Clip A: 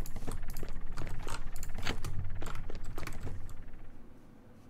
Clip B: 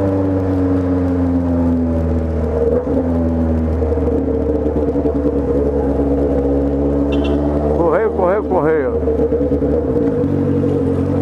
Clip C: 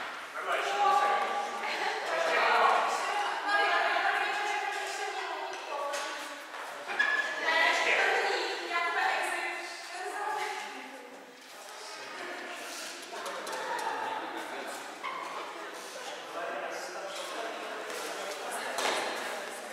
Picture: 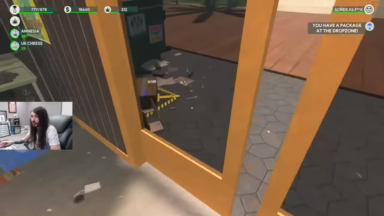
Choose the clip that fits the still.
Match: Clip A